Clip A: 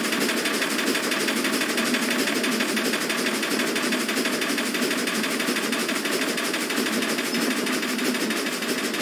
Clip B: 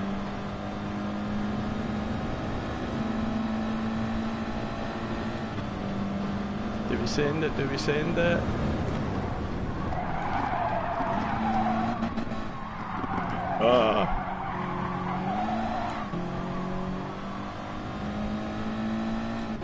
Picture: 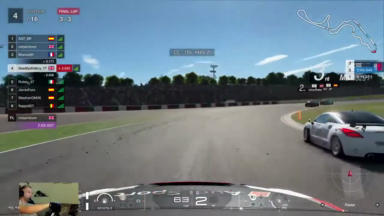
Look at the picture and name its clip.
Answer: B